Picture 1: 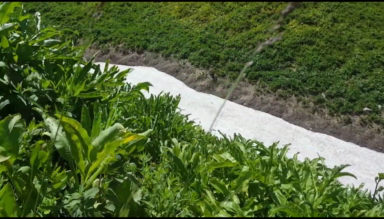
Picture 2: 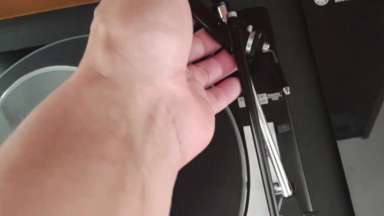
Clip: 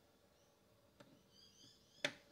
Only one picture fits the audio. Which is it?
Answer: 2